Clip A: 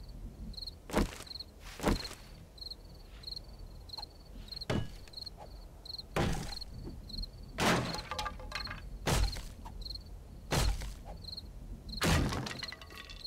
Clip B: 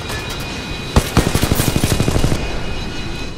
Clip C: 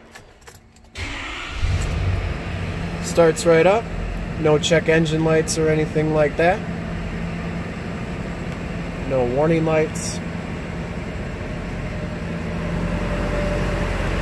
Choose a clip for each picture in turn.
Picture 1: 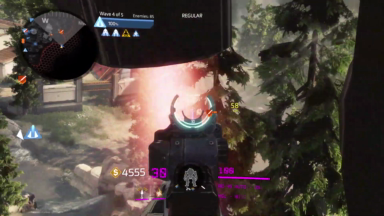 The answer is B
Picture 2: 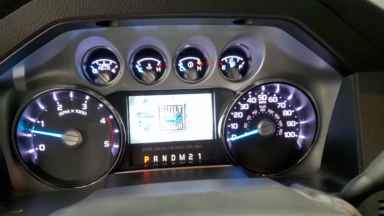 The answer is C